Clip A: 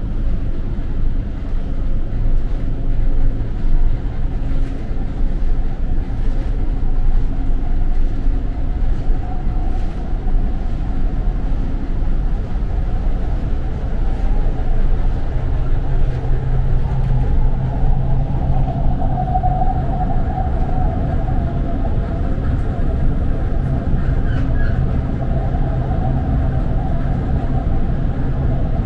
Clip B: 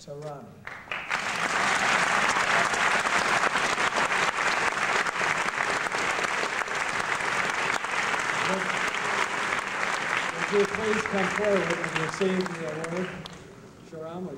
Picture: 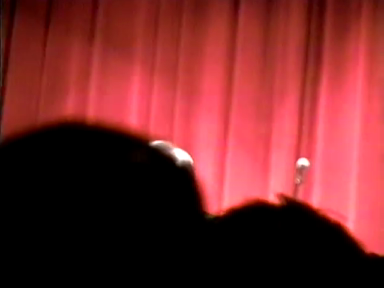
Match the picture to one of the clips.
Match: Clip B